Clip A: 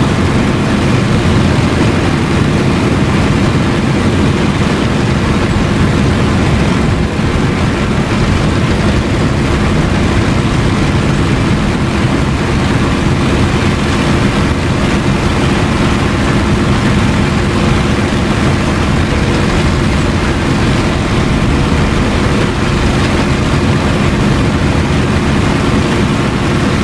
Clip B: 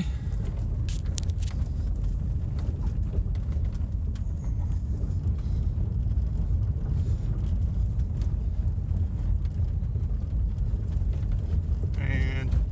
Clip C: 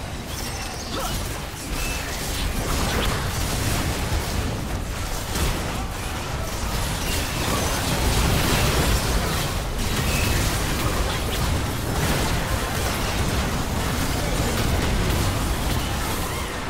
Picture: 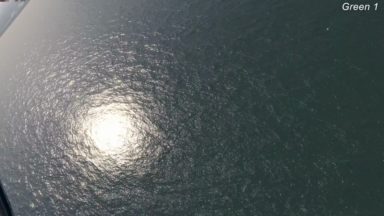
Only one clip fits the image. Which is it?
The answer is A